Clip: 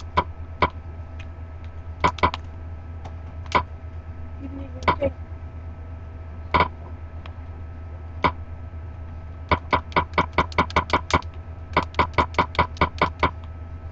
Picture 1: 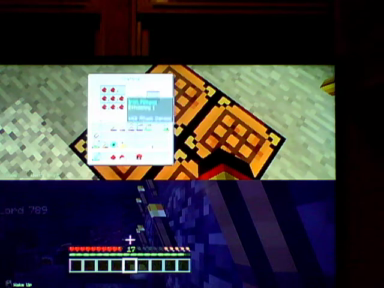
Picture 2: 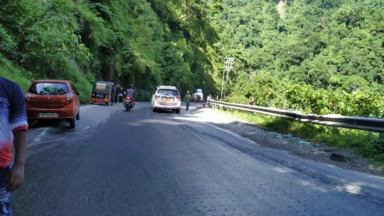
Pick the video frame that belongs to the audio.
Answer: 1